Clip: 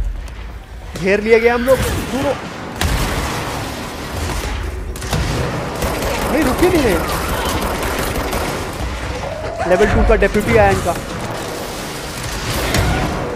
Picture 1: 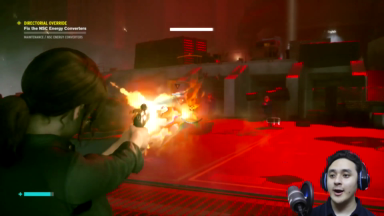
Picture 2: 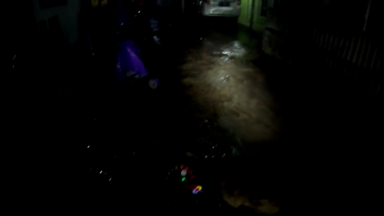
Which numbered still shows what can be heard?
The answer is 1